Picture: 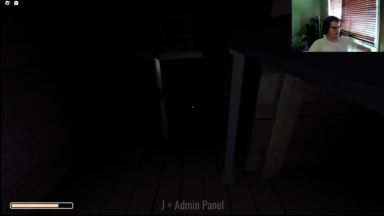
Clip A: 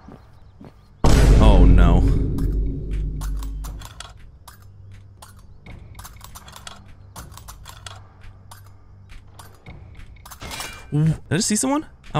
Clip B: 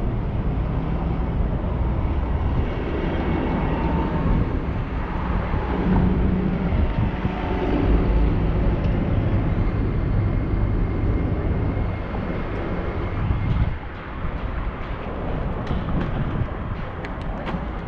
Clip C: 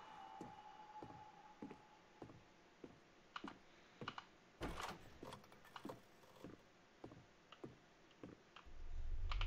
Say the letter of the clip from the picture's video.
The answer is C